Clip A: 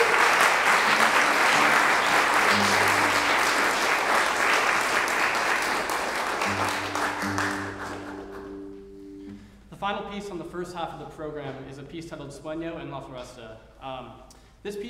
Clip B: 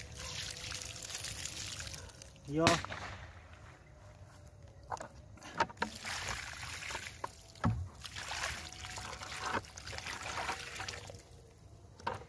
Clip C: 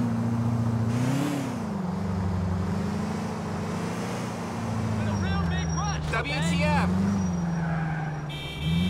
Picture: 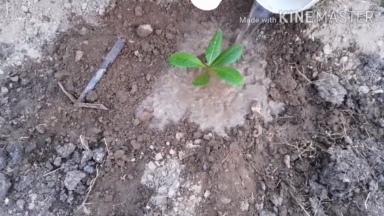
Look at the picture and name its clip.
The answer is B